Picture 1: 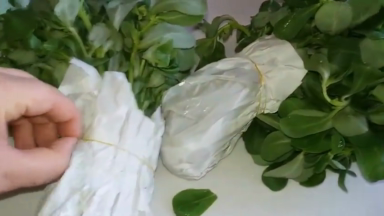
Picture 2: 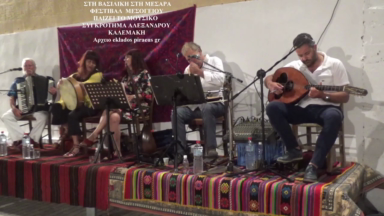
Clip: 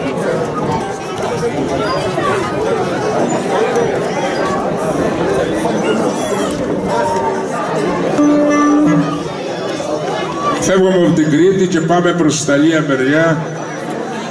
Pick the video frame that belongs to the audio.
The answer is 2